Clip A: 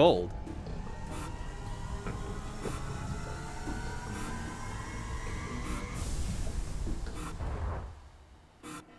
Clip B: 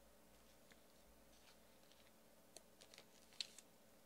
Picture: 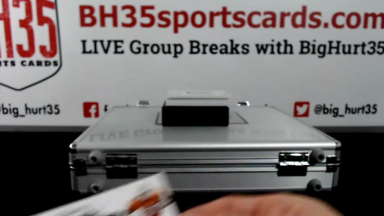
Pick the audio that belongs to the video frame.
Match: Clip B